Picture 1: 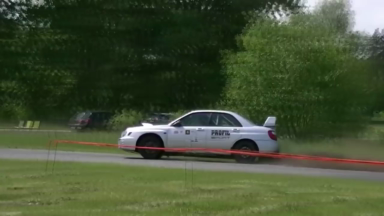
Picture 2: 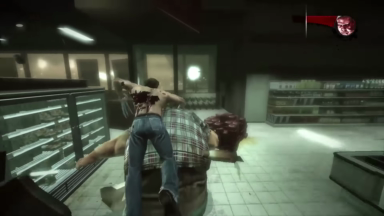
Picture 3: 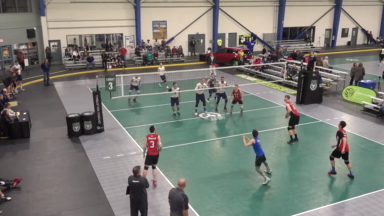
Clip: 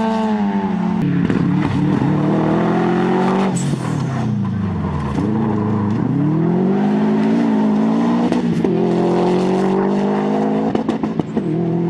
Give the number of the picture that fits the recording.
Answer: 1